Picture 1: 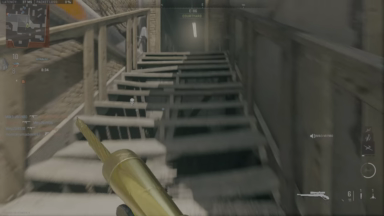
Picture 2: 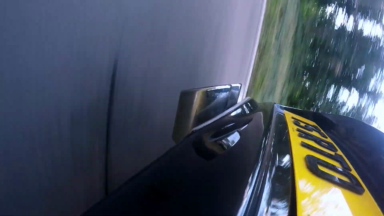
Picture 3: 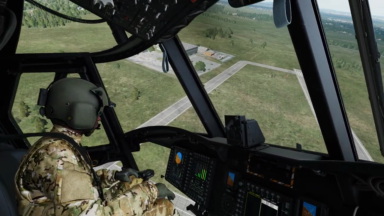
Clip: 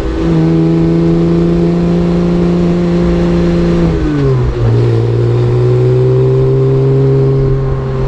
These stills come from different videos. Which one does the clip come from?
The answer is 2